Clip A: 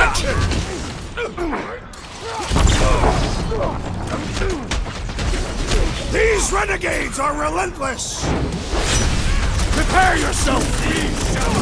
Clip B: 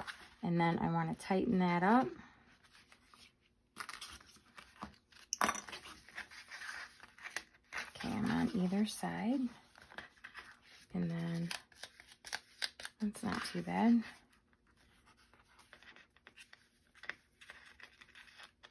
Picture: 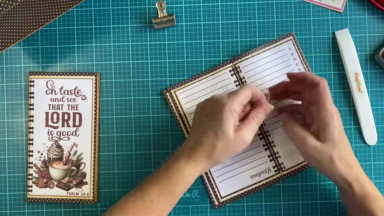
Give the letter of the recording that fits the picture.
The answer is B